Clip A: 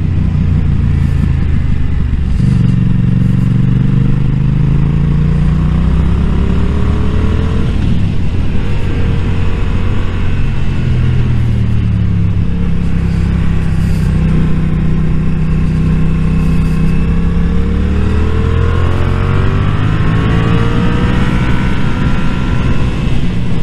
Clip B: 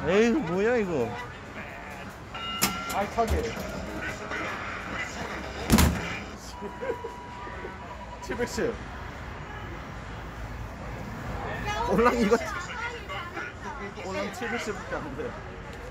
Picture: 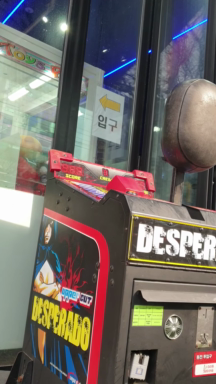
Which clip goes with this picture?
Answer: B